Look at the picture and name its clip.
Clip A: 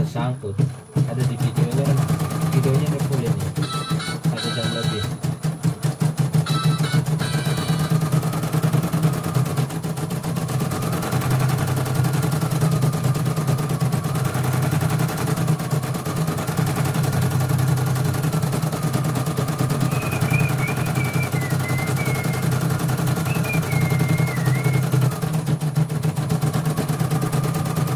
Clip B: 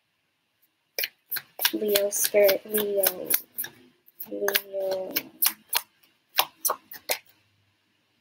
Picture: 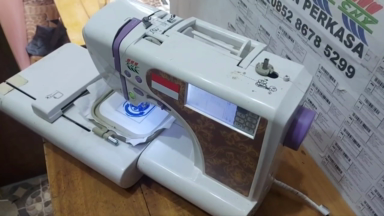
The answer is A